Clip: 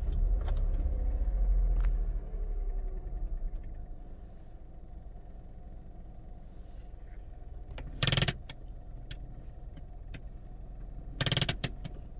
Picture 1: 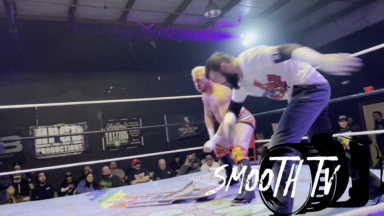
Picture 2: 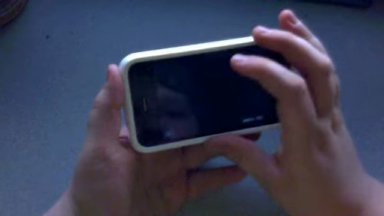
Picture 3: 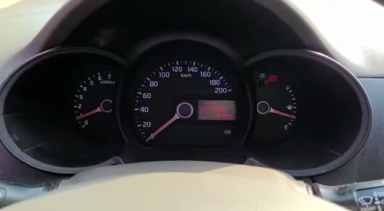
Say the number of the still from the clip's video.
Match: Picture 3